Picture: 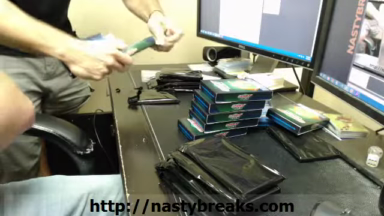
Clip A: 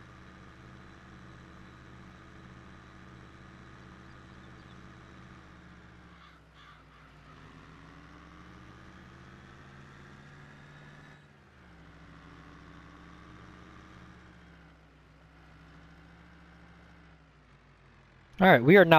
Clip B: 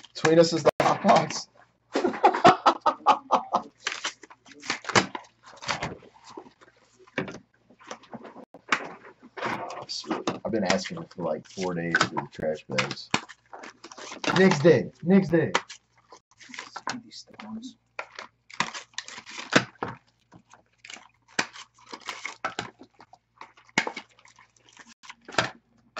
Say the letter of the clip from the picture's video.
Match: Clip B